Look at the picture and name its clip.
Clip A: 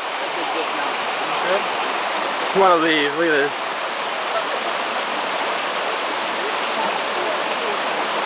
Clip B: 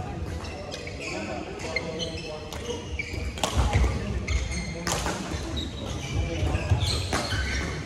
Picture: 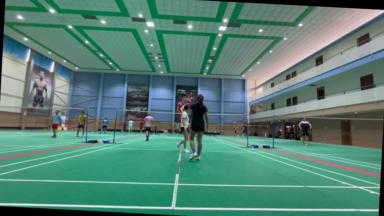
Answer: B